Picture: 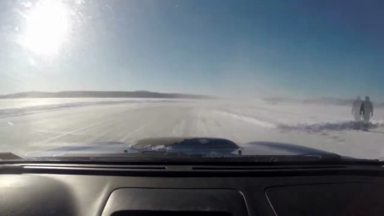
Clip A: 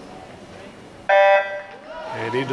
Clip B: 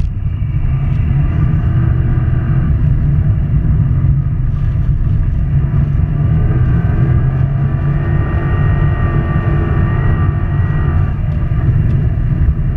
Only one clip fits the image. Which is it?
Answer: B